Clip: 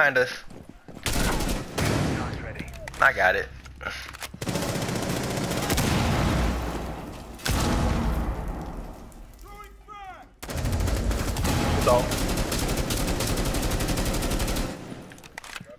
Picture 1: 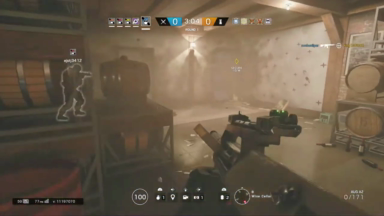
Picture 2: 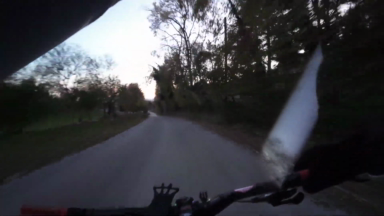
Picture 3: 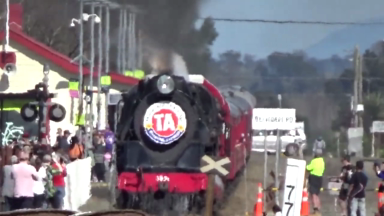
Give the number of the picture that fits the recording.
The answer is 1